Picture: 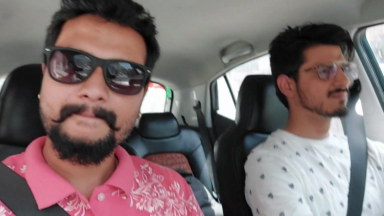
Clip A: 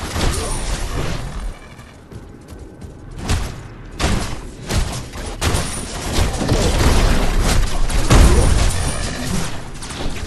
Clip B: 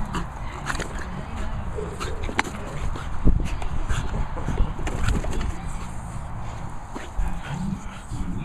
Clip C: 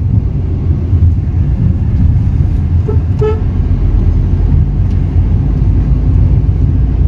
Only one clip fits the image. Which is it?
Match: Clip C